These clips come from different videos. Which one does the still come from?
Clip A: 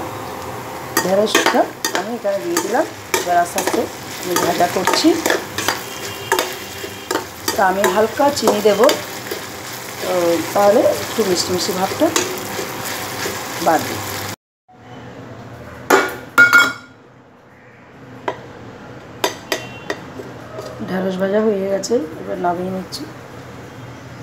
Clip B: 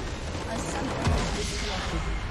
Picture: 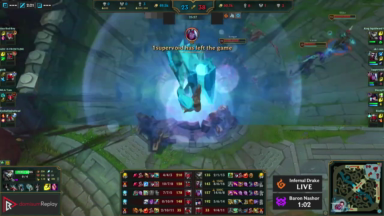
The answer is B